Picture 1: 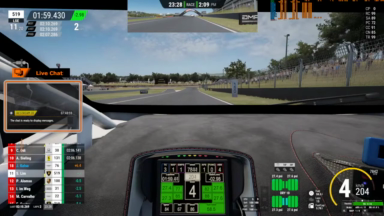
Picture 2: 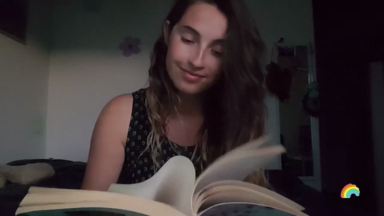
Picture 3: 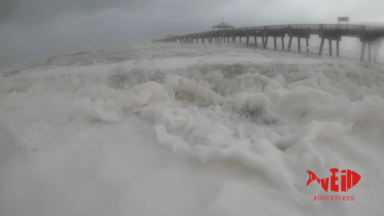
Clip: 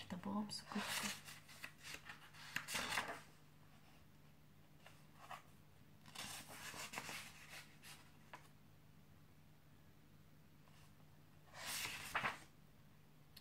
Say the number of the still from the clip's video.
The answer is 2